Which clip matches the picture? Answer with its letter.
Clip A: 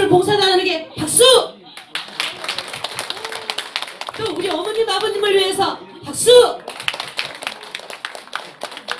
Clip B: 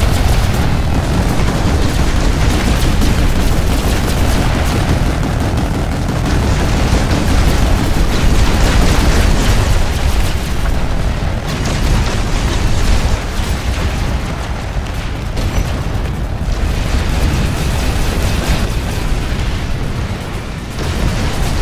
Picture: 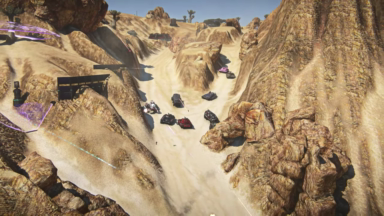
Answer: B